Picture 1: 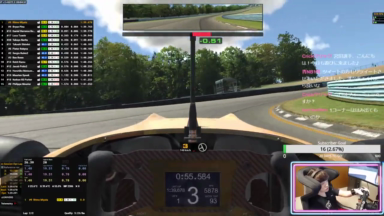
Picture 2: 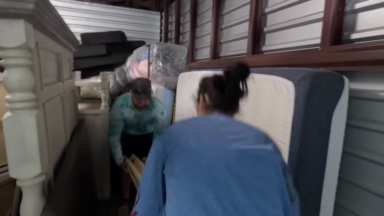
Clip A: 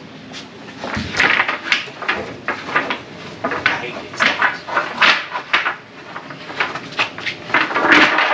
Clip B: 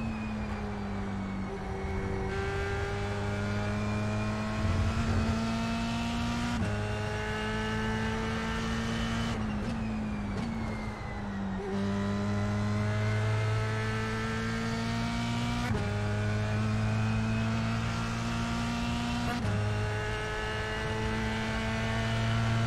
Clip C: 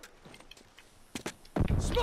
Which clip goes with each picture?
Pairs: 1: B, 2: A